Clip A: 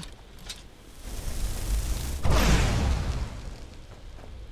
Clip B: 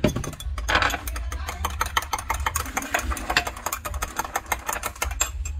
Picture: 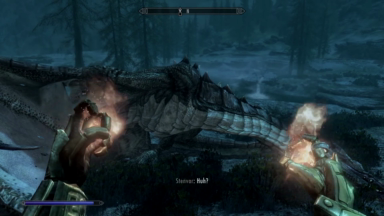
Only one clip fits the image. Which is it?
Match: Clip A